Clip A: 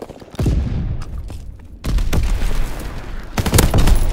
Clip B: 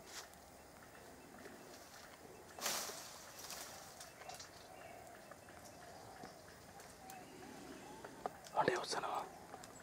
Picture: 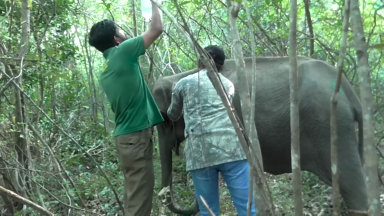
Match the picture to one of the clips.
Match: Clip B